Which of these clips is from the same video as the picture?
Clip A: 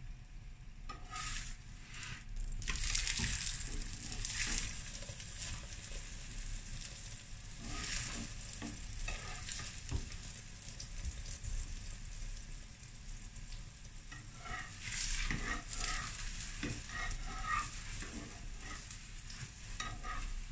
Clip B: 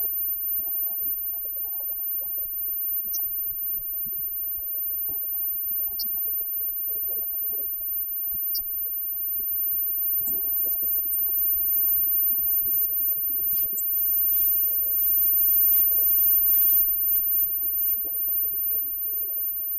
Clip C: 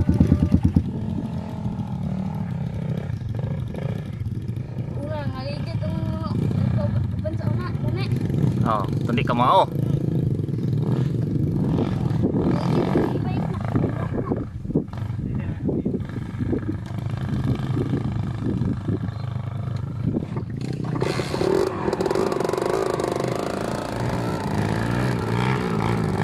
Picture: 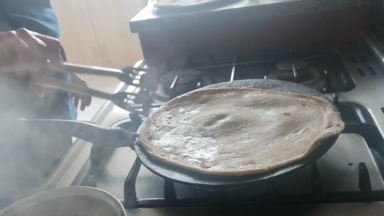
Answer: A